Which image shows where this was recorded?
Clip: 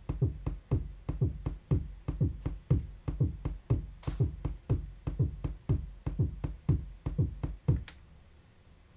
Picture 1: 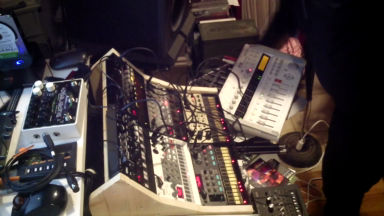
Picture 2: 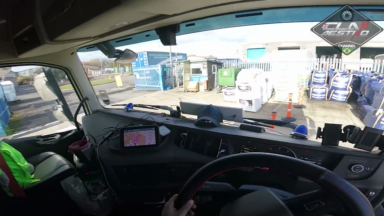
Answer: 1